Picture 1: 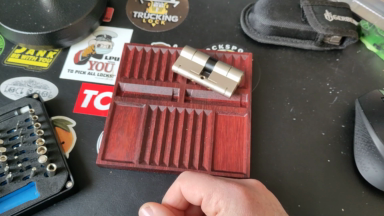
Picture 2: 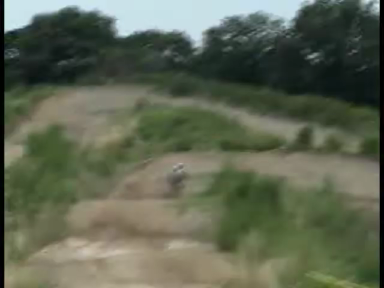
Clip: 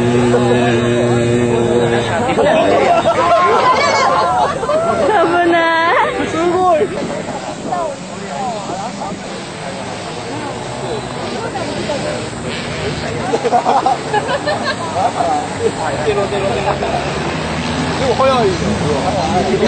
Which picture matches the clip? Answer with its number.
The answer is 2